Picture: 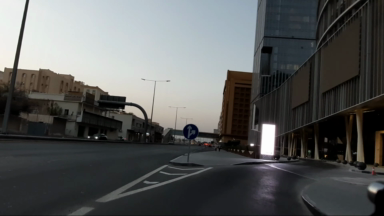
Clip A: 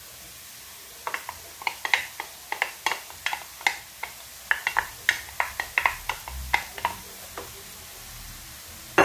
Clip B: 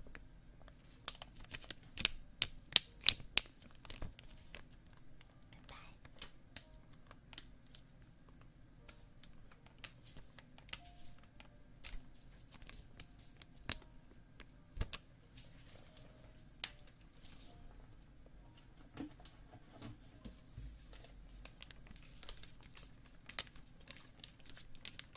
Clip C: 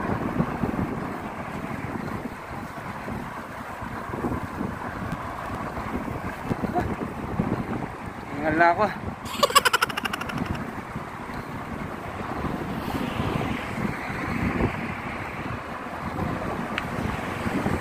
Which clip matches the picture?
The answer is C